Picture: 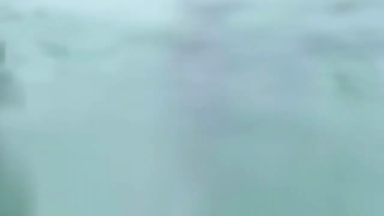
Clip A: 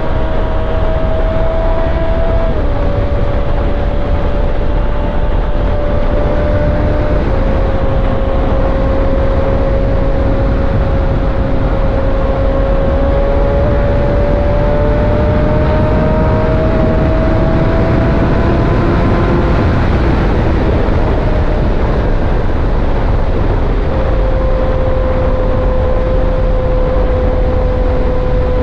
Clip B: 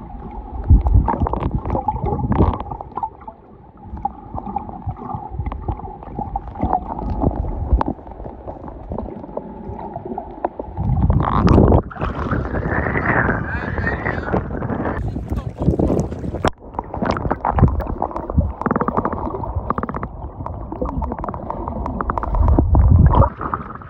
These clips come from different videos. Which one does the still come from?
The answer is B